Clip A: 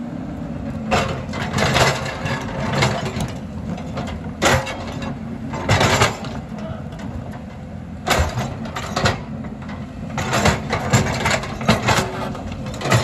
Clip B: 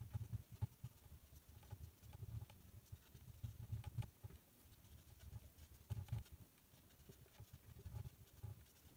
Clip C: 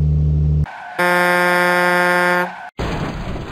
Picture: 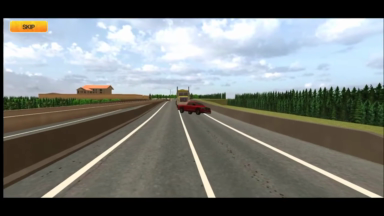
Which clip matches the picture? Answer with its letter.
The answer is C